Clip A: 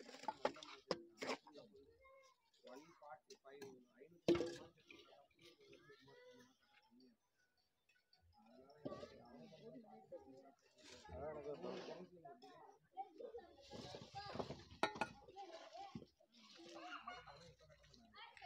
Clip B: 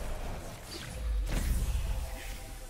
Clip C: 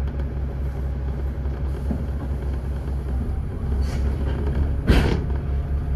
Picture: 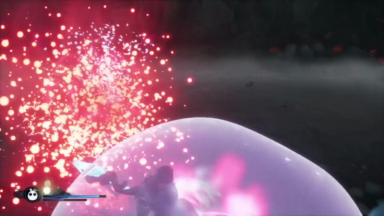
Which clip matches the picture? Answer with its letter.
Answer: B